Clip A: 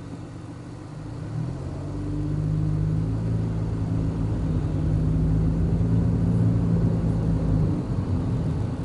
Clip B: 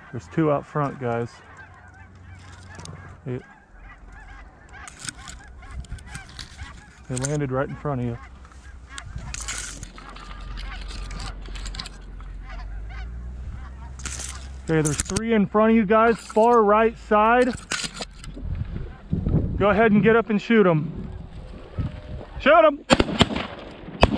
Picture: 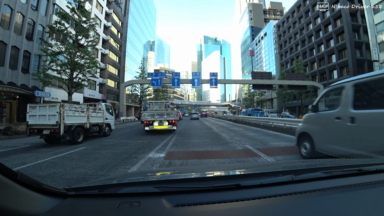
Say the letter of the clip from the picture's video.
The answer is A